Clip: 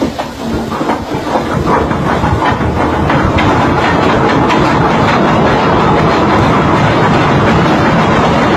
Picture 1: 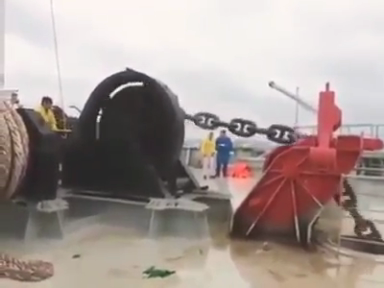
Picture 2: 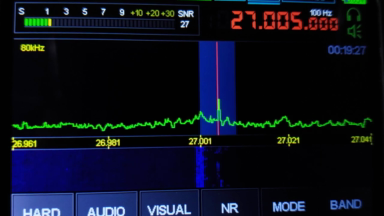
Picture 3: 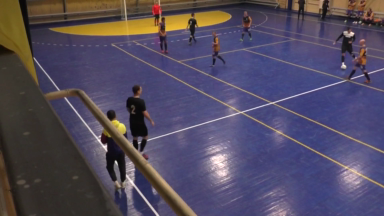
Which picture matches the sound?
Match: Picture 1